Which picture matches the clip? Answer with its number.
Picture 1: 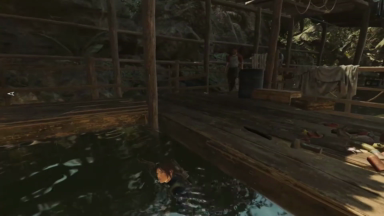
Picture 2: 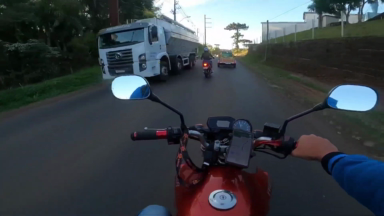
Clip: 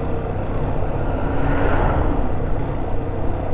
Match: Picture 2